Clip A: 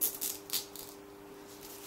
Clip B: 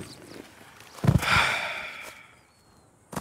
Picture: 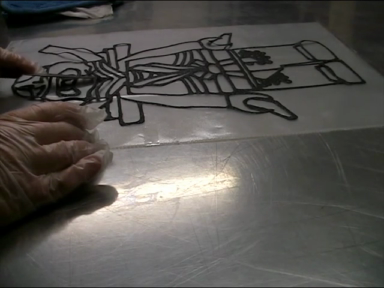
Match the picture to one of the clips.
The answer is A